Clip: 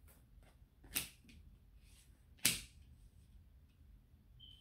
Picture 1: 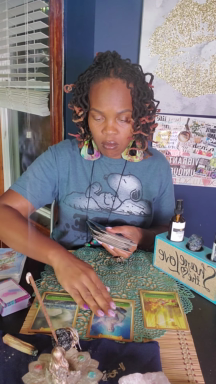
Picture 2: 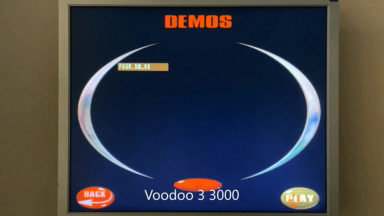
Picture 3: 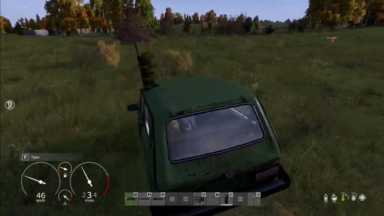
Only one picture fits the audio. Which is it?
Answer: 1